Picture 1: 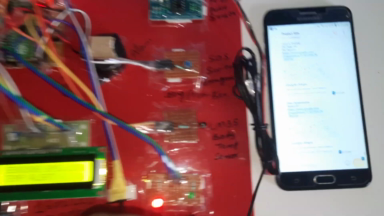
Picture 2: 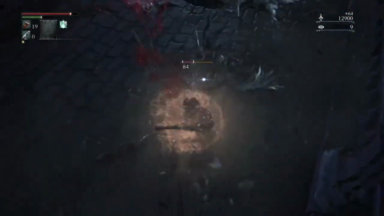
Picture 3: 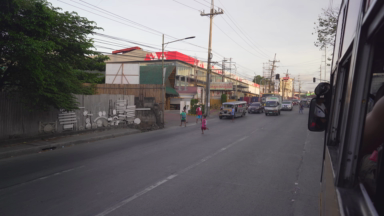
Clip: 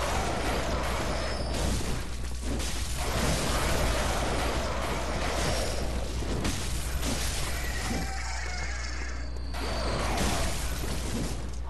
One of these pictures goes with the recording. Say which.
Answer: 2